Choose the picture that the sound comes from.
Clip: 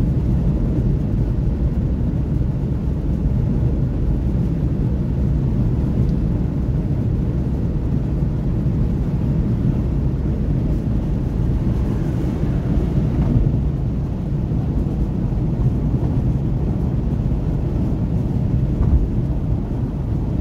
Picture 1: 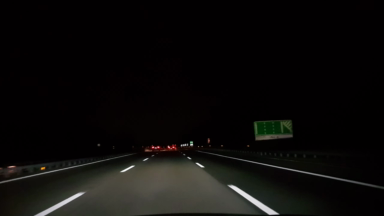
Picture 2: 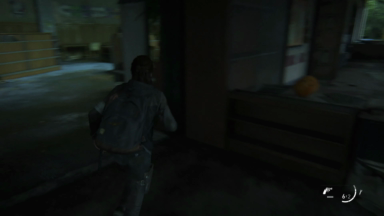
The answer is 1